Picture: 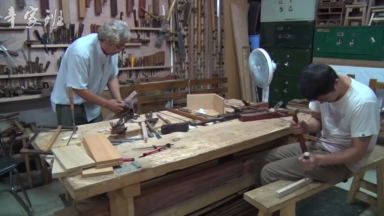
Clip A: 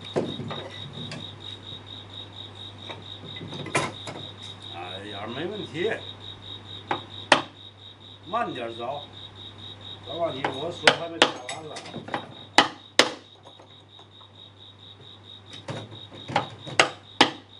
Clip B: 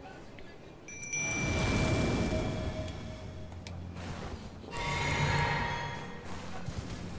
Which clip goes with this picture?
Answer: A